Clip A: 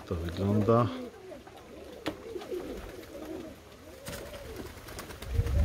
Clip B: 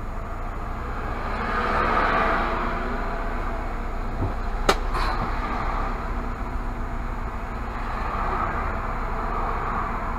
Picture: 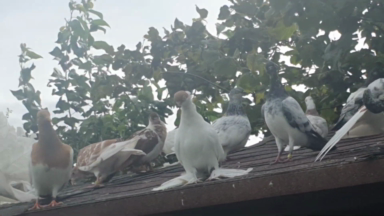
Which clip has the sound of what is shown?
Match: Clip A